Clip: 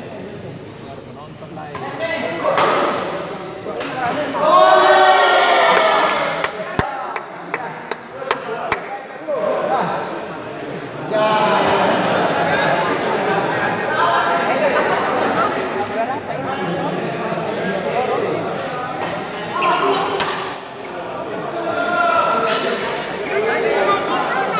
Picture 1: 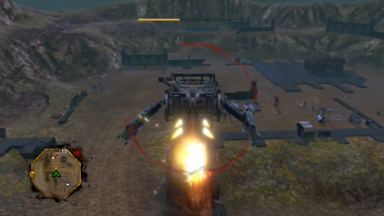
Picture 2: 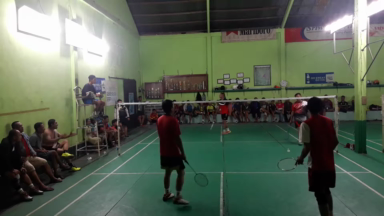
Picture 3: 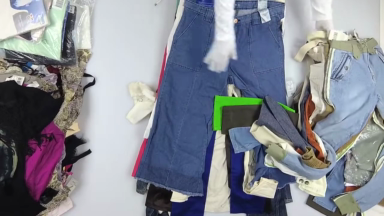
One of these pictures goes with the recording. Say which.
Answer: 2